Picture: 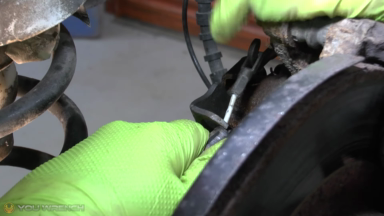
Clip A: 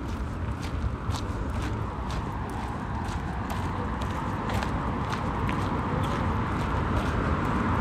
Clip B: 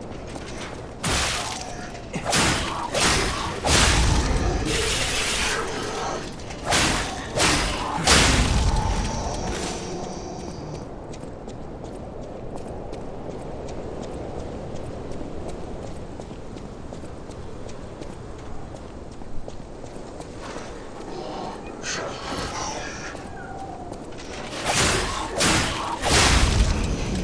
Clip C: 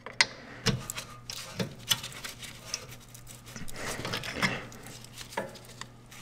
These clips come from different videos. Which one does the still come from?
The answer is C